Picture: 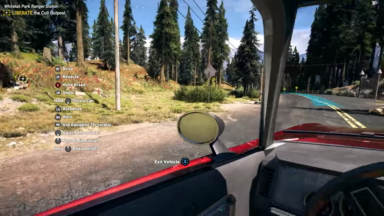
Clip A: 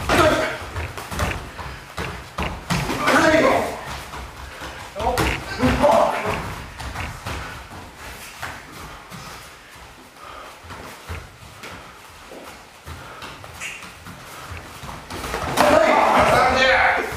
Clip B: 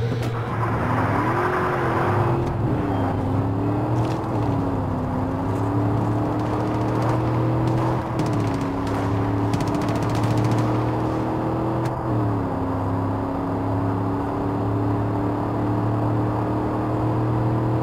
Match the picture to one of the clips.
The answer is B